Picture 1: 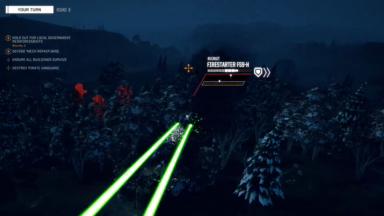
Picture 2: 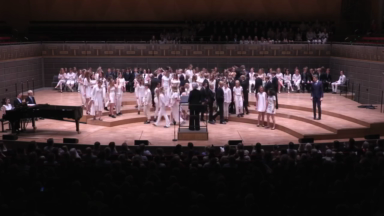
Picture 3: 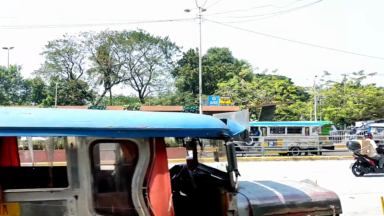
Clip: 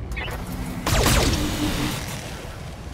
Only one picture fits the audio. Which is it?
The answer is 1